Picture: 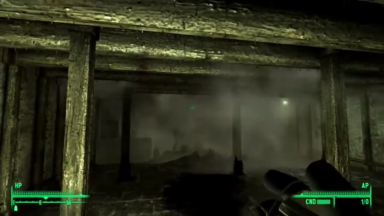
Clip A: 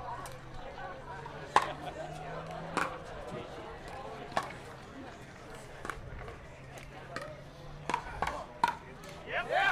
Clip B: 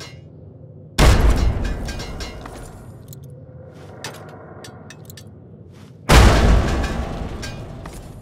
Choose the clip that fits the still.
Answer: B